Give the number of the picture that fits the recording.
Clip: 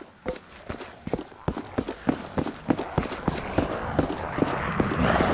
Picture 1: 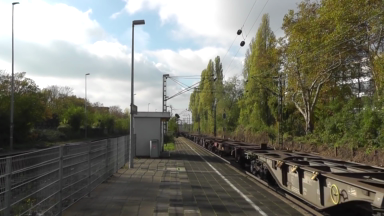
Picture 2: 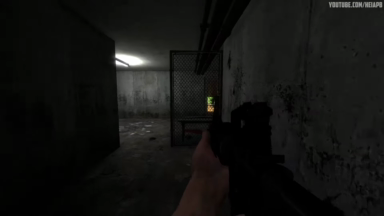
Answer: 2